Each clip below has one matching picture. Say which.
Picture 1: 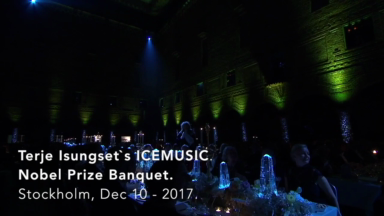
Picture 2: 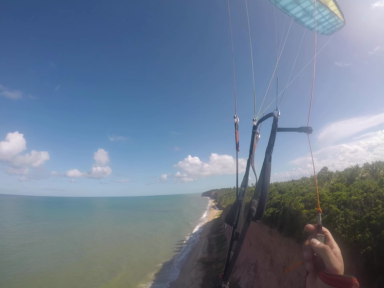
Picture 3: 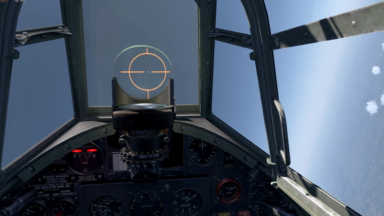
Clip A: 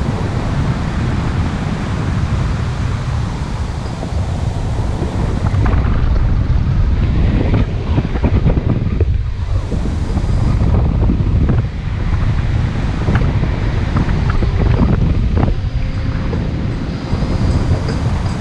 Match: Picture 2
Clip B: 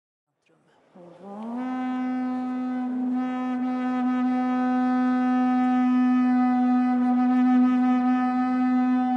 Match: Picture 1